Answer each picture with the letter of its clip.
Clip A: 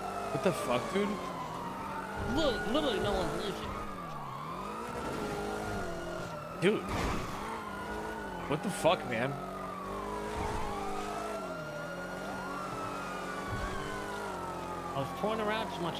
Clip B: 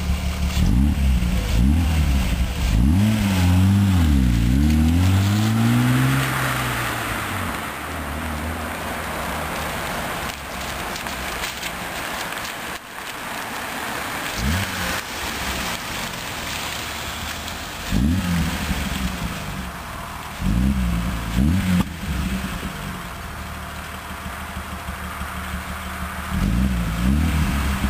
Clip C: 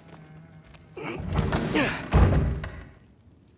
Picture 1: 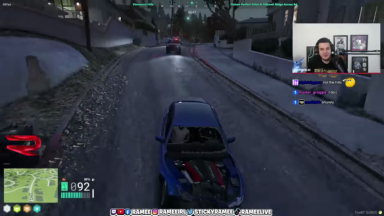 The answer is A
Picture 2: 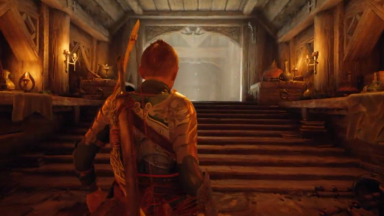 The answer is C